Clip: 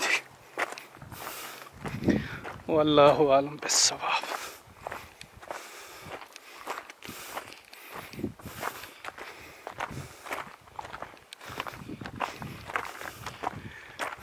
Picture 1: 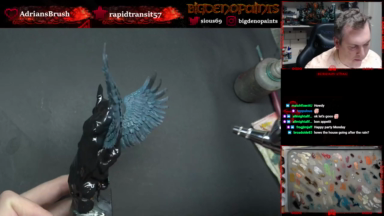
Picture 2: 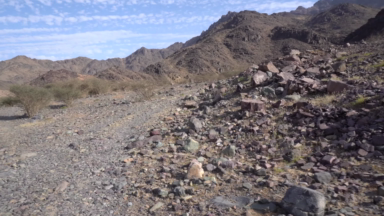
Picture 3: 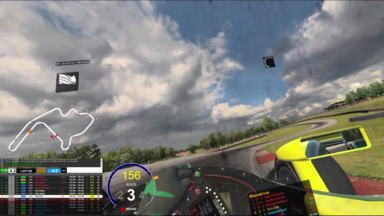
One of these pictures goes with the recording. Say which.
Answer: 2